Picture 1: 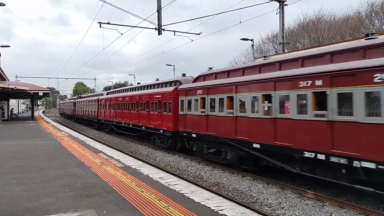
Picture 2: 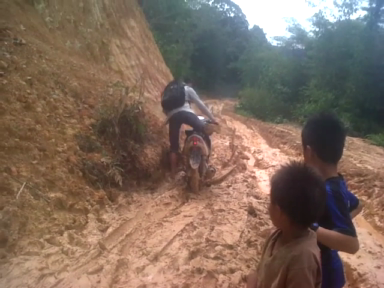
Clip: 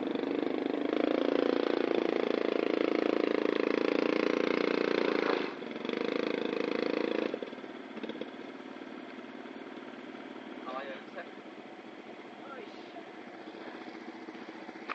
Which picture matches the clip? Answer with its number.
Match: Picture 2